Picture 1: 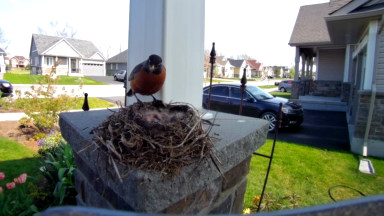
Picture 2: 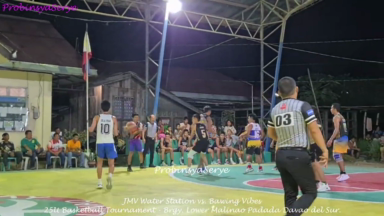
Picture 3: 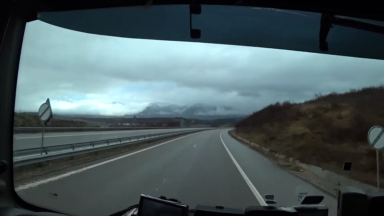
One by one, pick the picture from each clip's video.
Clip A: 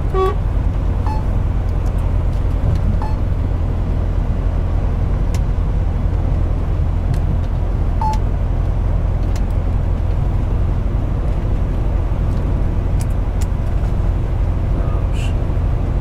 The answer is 3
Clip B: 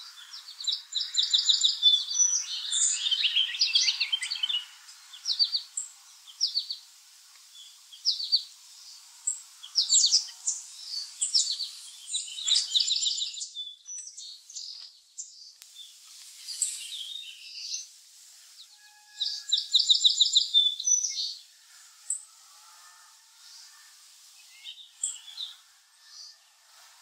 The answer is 1